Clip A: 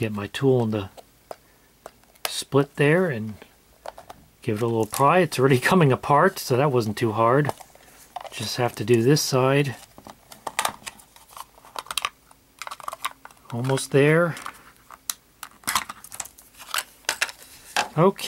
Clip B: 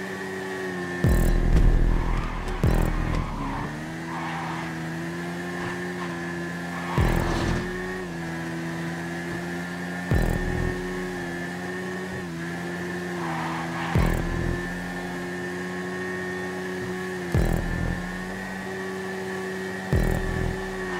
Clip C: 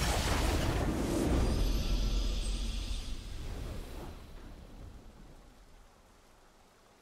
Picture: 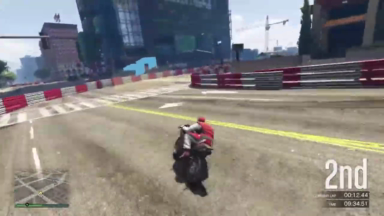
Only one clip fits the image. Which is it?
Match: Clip B